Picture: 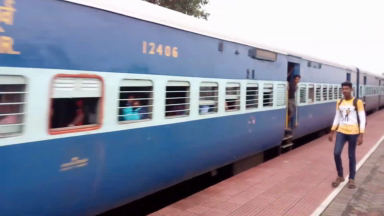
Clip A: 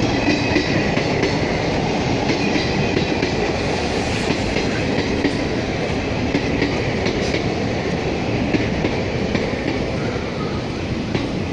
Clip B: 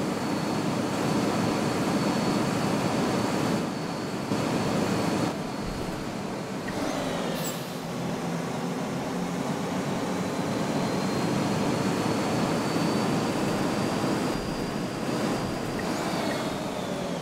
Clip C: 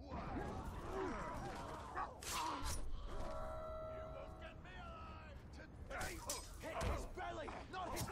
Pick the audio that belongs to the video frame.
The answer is A